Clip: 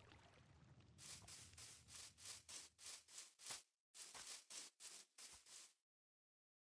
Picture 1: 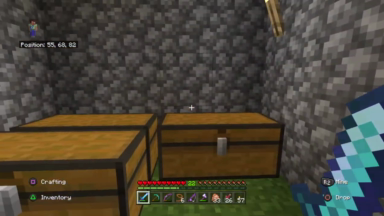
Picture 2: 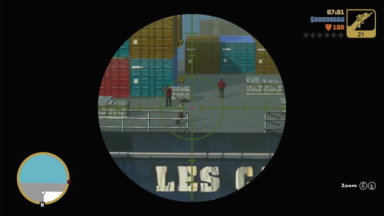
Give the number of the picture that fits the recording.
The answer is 1